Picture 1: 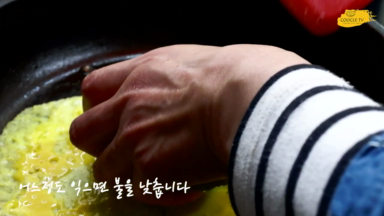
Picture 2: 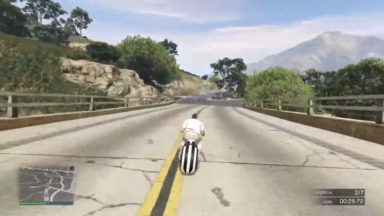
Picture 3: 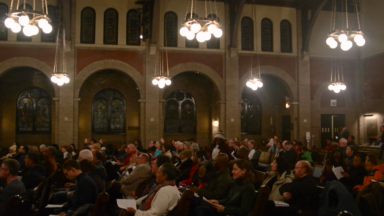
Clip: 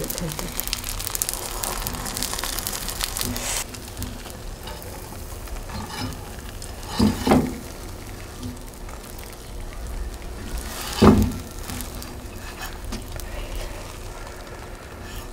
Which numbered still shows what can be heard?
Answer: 1